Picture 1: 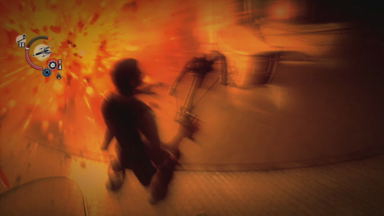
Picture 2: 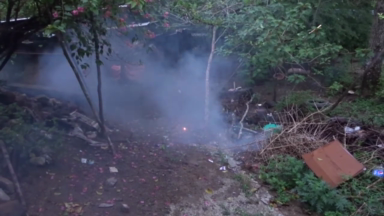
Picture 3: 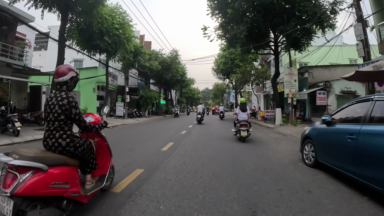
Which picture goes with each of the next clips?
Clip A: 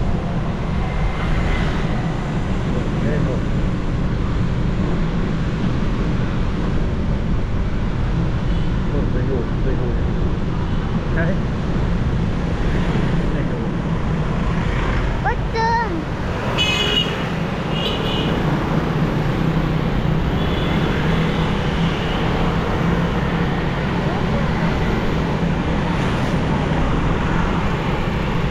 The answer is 3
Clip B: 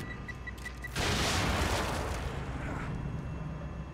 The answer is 1